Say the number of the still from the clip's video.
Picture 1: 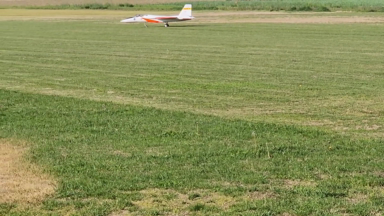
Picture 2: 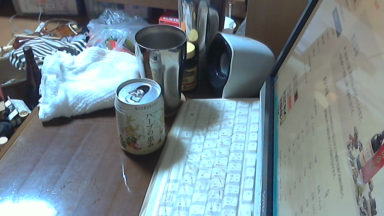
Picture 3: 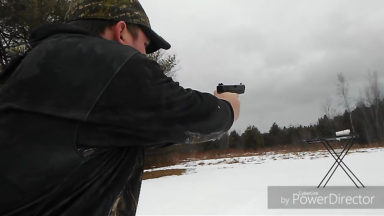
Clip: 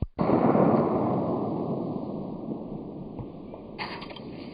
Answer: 3